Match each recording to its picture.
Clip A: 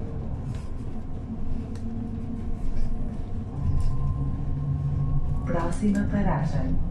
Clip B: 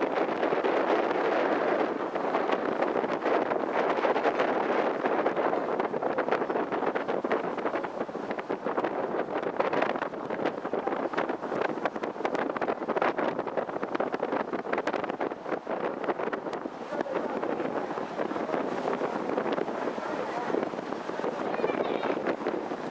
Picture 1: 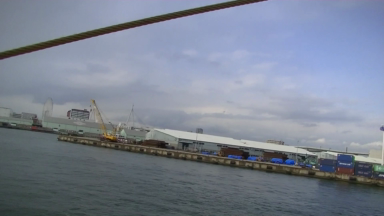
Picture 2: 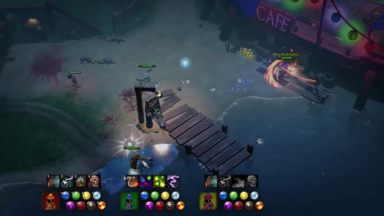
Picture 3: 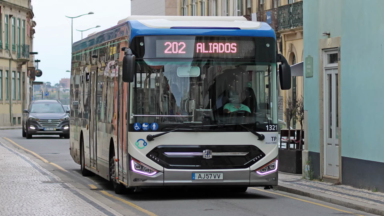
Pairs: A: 3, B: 1